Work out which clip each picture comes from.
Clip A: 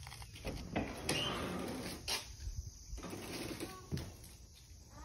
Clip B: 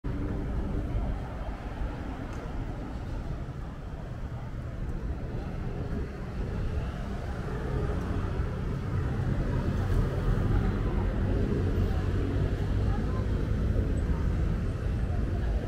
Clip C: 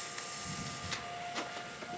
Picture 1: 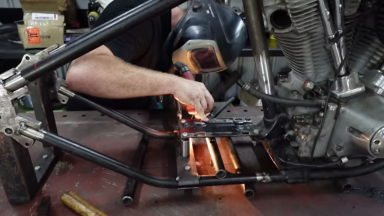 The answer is C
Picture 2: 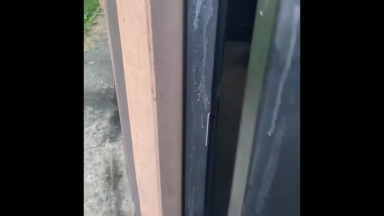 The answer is A